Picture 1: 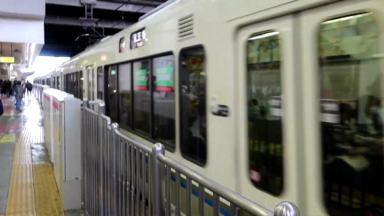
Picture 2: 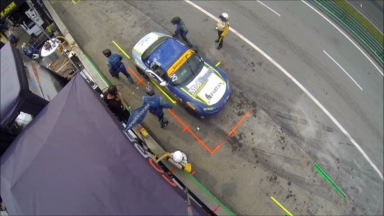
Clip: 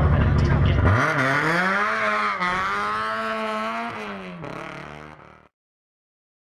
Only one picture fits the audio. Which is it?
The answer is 2